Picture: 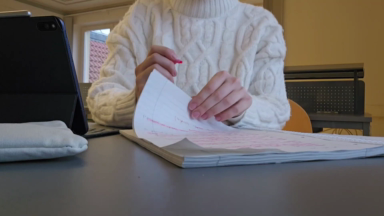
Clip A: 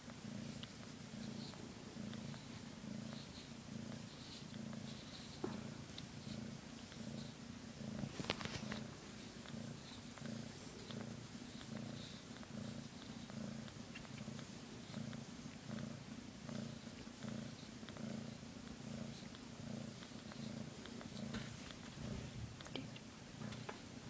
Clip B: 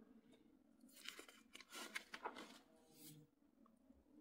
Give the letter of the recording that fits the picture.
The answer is B